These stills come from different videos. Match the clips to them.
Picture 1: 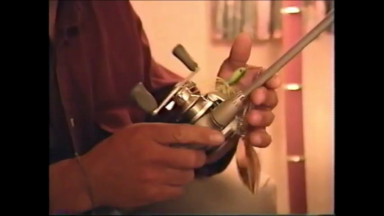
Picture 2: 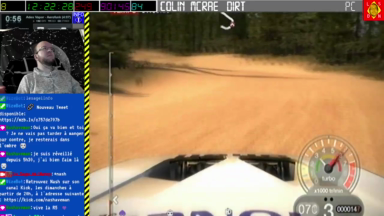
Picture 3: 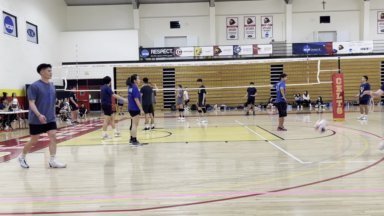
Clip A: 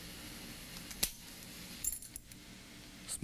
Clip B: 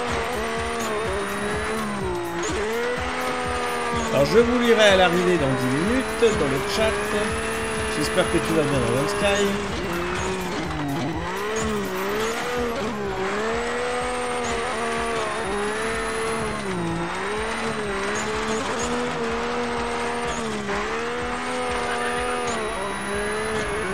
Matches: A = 1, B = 2